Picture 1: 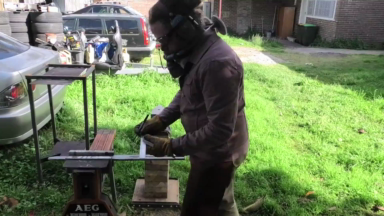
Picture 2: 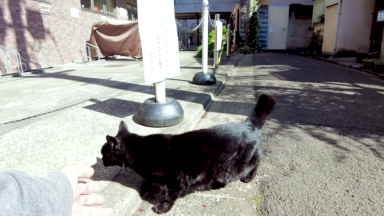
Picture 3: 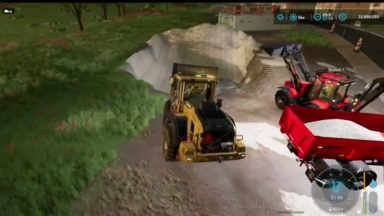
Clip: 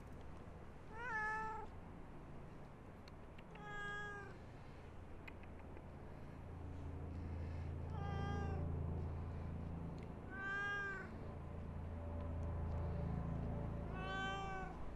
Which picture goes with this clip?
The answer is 2